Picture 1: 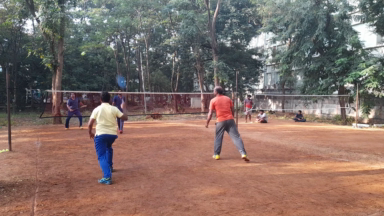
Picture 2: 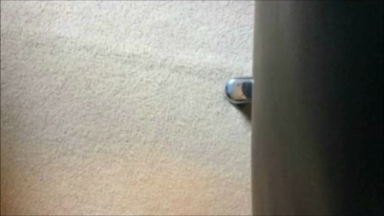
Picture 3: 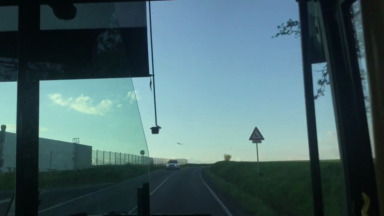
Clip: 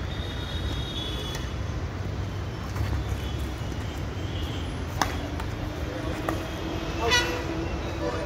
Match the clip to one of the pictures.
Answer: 1